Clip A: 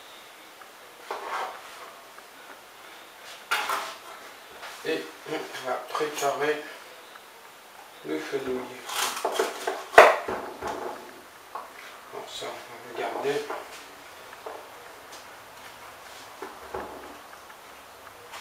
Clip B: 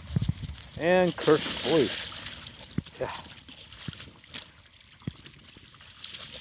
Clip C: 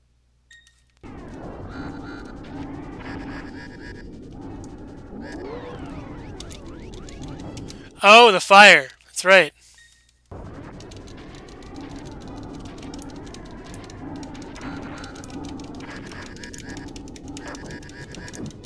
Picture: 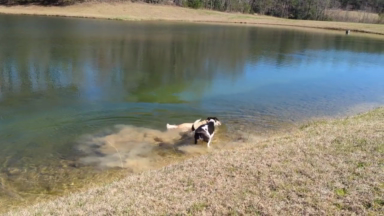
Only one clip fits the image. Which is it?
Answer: B